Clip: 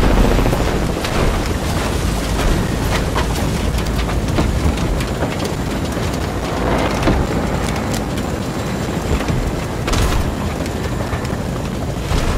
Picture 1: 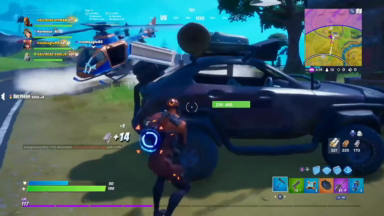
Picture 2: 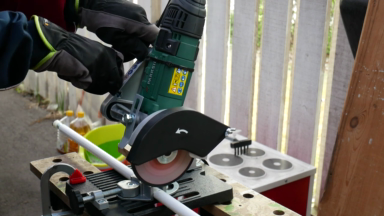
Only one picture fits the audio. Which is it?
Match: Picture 1